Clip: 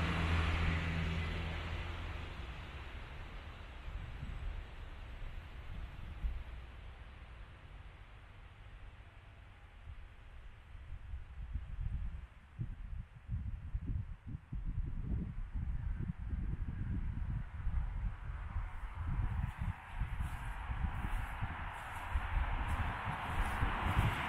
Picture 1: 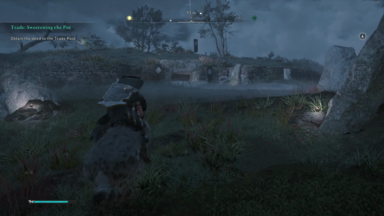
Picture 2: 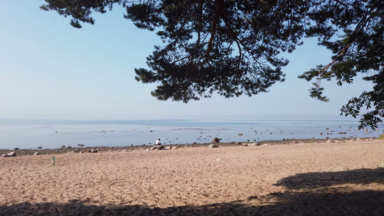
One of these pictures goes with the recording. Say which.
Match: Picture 2